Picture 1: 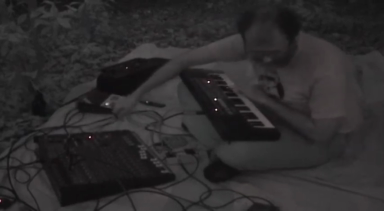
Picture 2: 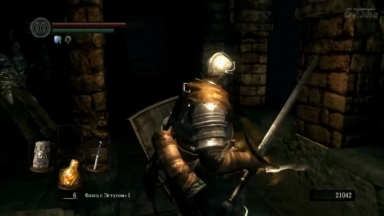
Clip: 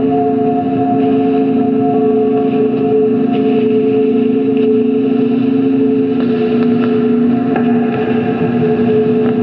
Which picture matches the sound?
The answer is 1